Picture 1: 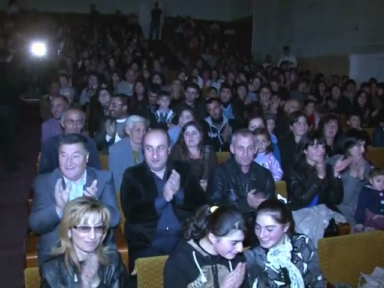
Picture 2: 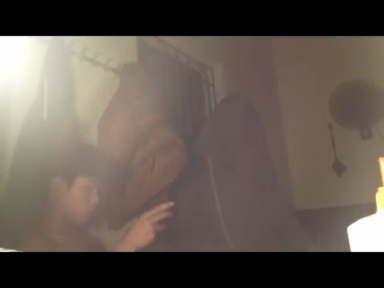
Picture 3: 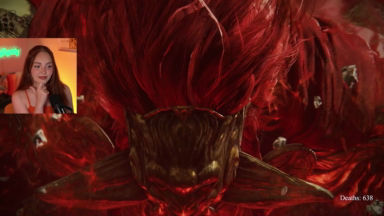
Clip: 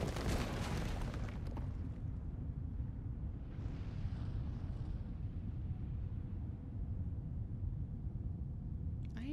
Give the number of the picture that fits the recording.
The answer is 3